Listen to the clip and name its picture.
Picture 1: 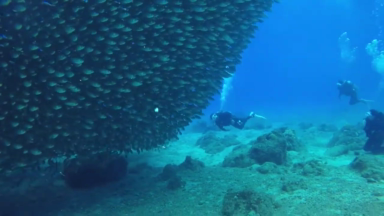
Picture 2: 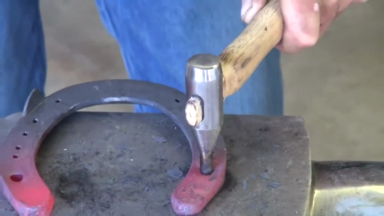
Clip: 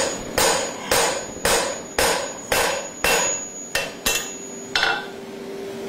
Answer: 2